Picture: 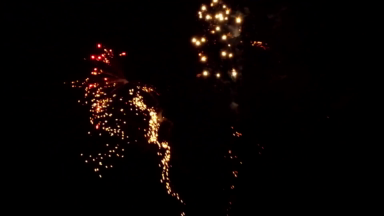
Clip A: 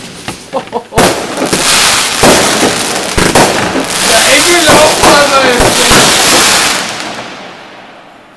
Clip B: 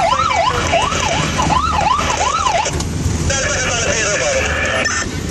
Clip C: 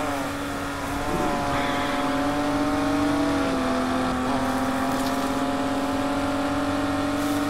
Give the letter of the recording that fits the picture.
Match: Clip A